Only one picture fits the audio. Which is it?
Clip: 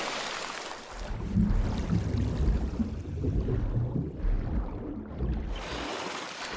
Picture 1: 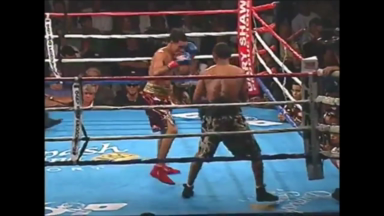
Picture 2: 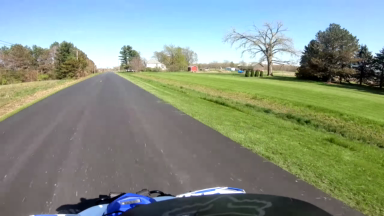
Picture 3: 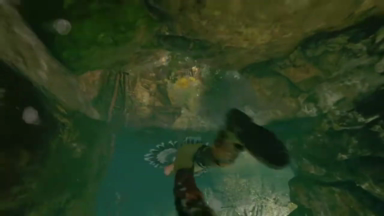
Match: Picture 3